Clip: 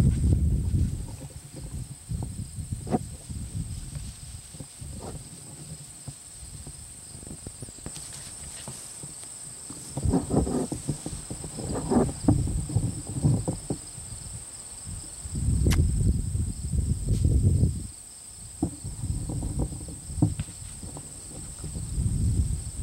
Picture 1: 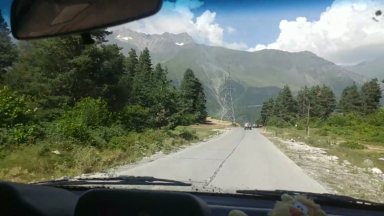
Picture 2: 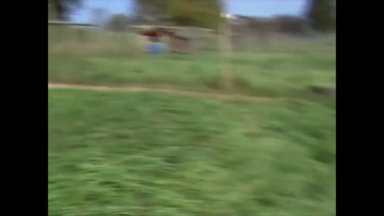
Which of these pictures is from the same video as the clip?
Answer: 2